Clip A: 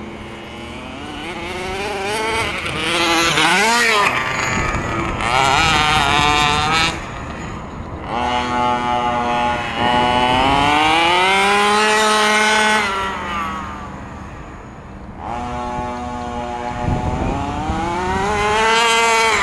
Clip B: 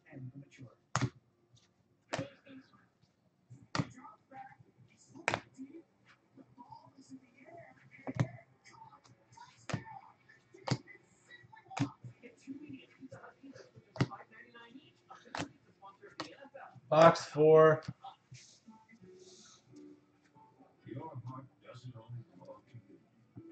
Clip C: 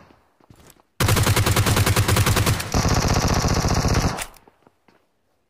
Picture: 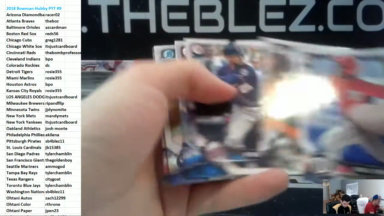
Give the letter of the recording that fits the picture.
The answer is B